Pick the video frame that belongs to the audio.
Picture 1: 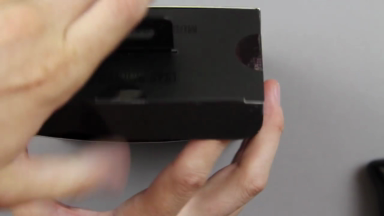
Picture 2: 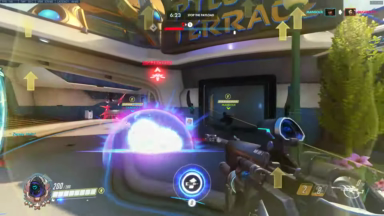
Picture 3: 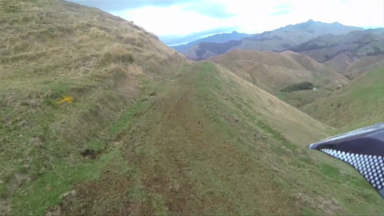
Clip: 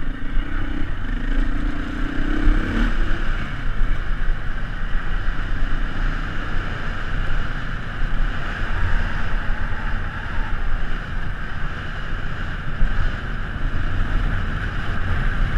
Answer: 3